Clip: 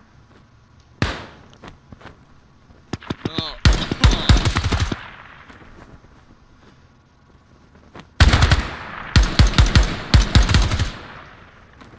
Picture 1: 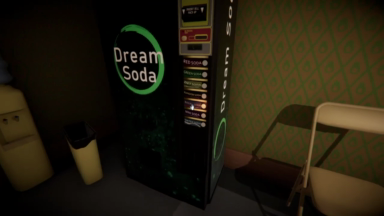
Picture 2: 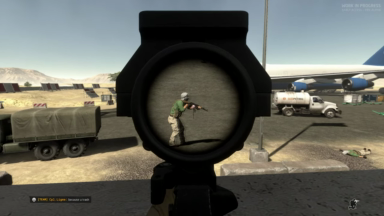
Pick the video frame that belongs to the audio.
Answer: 2